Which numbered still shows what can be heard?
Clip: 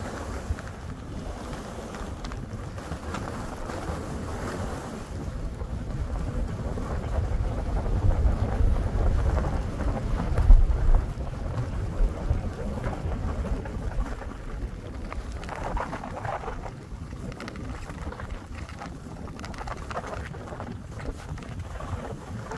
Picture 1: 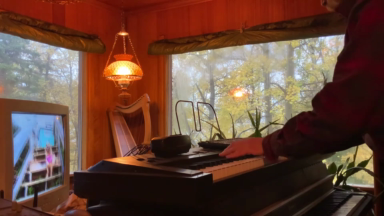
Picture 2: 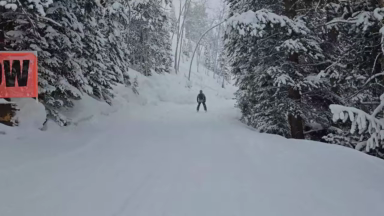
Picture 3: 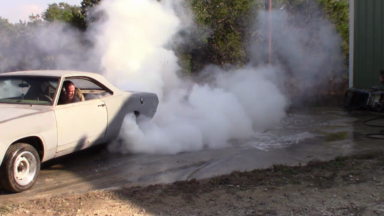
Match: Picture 2